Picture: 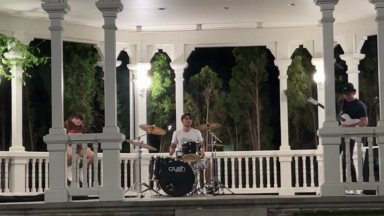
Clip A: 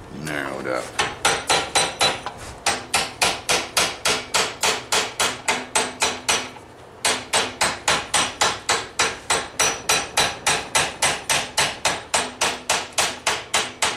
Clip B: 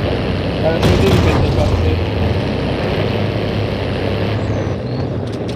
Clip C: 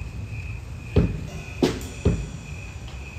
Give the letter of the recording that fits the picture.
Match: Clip C